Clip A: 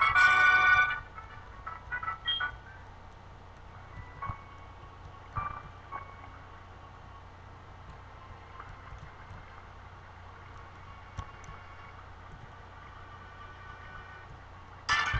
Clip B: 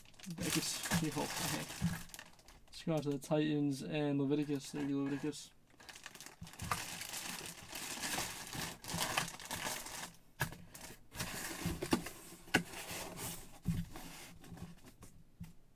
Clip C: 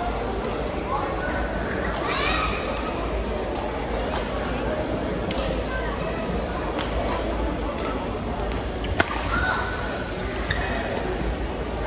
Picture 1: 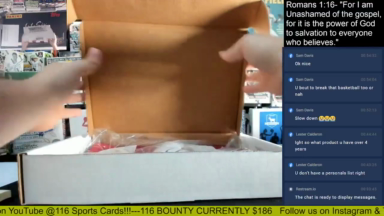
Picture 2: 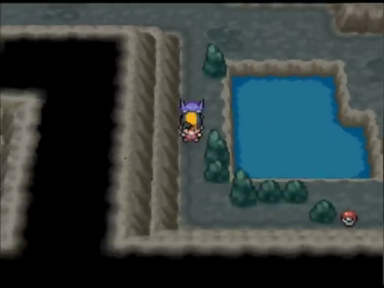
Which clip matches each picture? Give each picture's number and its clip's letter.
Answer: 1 B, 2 A